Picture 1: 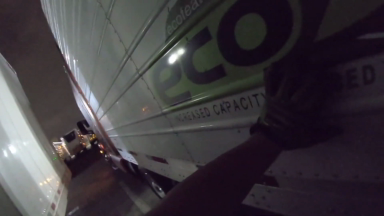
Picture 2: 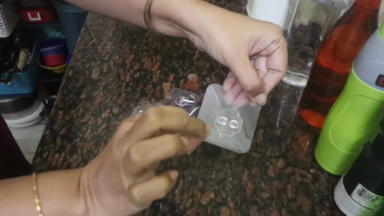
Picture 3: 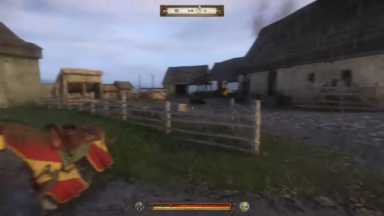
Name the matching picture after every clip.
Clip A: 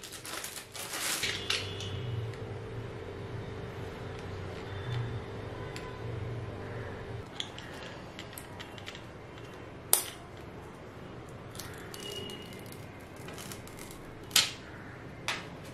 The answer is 2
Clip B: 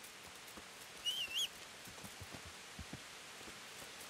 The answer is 3